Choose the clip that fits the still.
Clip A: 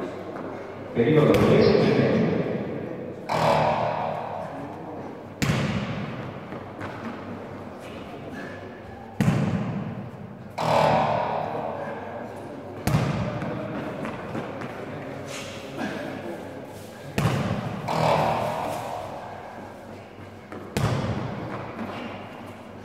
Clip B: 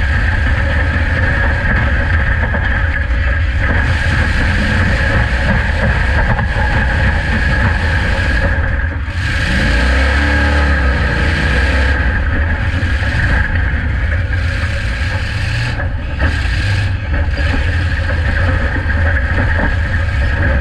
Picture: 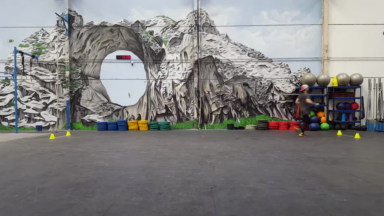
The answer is A